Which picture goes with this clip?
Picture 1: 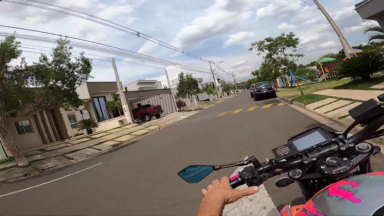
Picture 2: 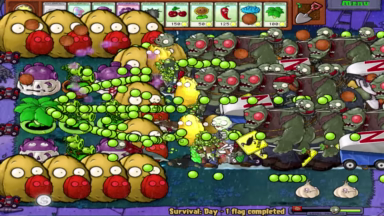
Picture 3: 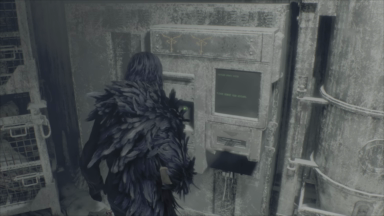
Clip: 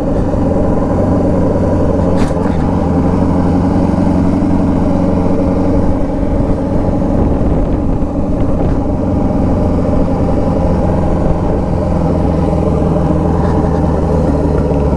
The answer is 1